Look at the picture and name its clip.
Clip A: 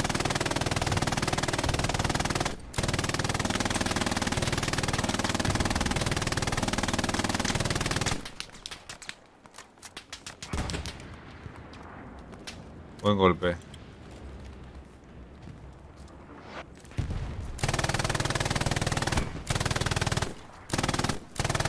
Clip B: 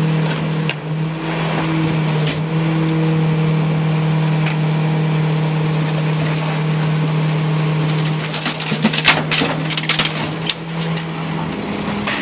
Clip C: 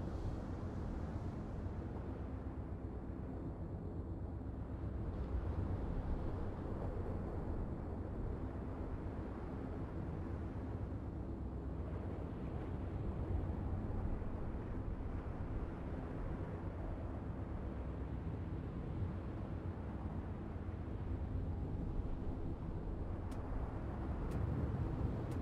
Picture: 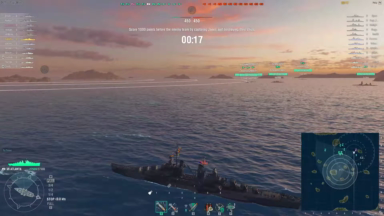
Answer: C